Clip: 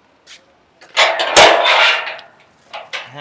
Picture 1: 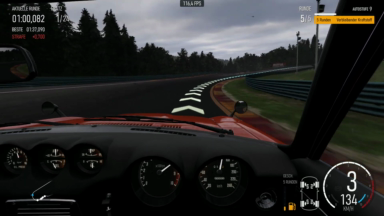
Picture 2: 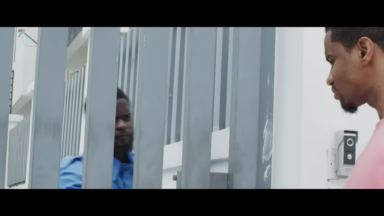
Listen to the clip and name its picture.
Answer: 2